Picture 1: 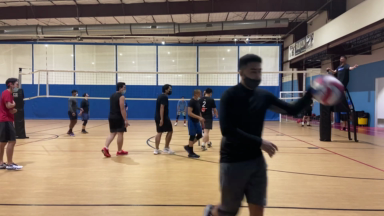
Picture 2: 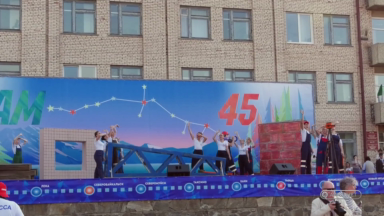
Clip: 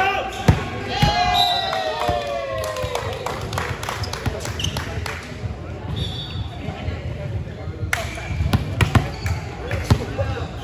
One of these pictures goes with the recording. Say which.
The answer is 1